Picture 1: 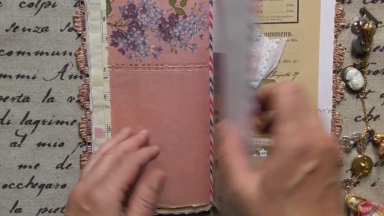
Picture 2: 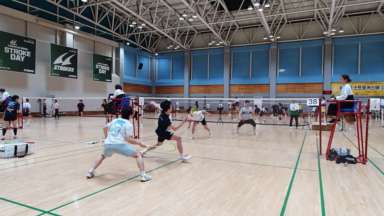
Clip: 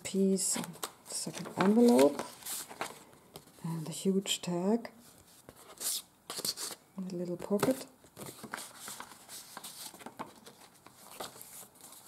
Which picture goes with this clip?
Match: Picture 1